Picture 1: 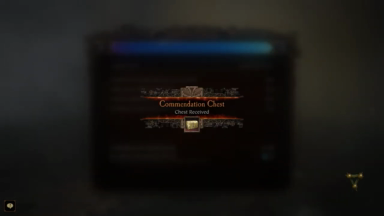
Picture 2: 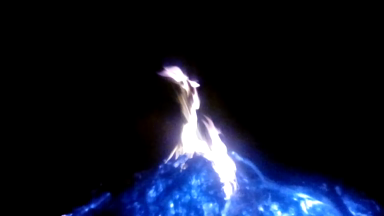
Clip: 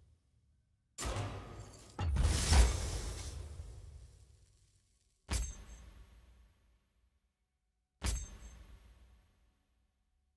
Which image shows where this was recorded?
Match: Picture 1